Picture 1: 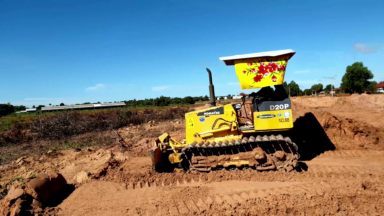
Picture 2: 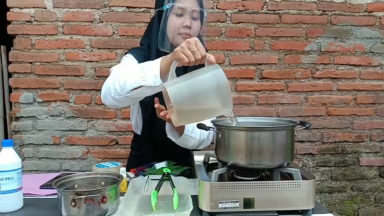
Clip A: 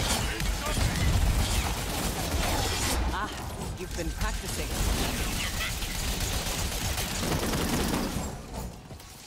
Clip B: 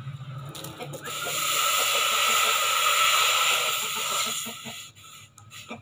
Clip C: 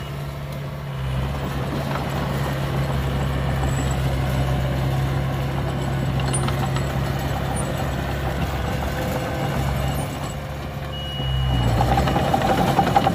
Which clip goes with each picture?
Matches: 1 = C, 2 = B